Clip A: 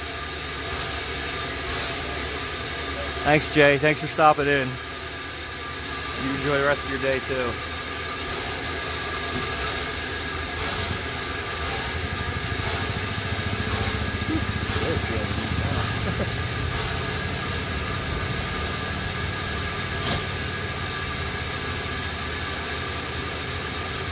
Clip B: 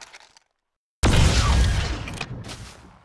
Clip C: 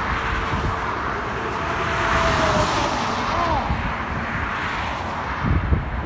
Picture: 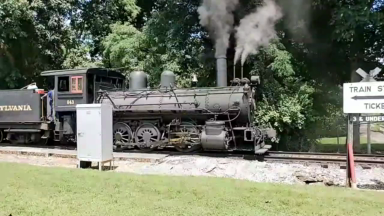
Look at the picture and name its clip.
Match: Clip A